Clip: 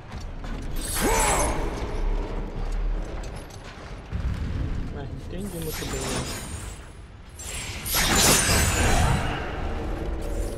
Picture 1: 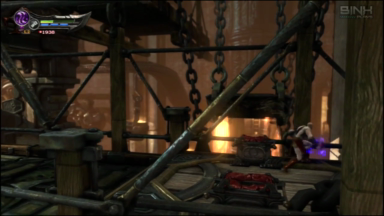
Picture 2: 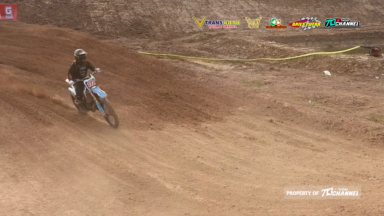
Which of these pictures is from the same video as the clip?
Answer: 1